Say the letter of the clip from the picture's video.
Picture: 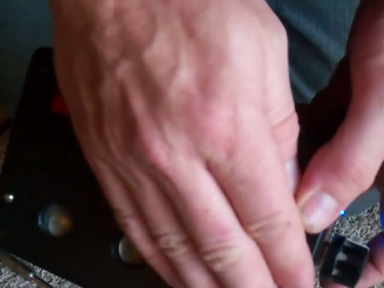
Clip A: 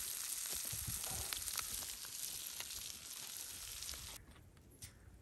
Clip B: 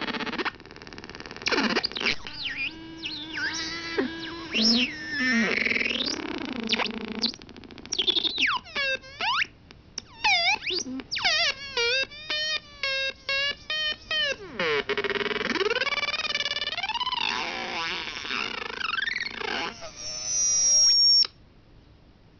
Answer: B